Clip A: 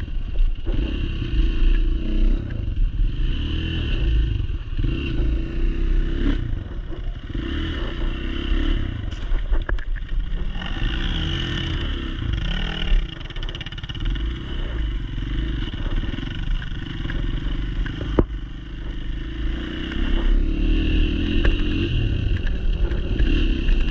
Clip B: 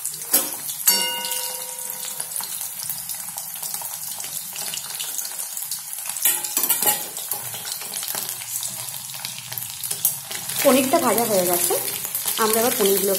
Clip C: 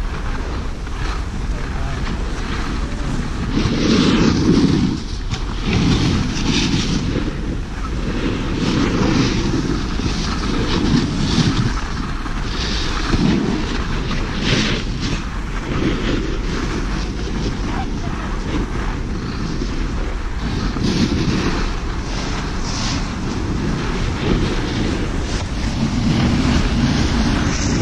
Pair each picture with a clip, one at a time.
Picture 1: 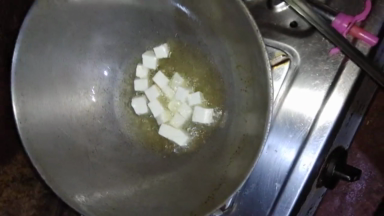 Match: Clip B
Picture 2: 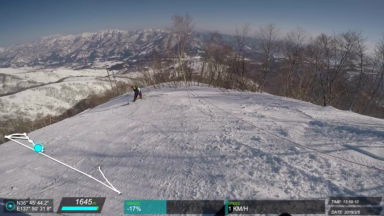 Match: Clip C